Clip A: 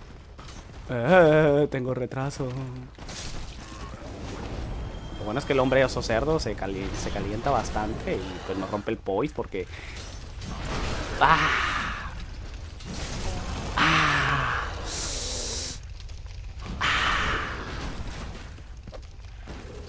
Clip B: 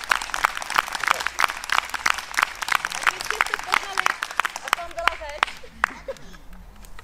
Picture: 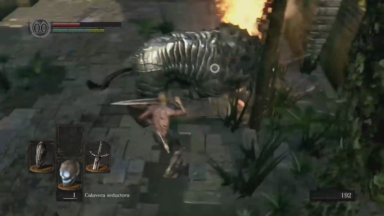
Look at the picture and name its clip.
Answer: A